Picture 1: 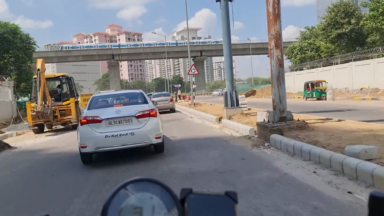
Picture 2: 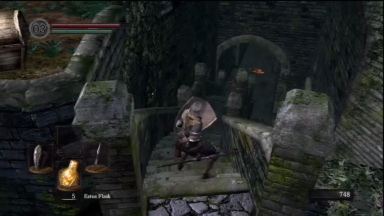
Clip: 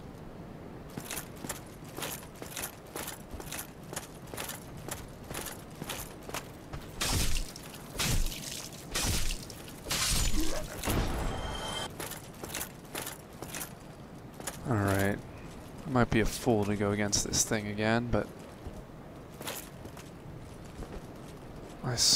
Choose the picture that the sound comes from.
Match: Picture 2